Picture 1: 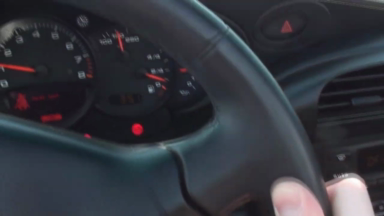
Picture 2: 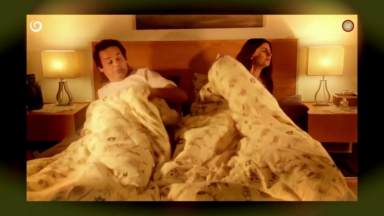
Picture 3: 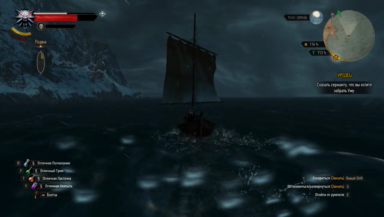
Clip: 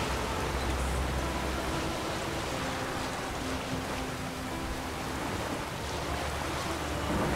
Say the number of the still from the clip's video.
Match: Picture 3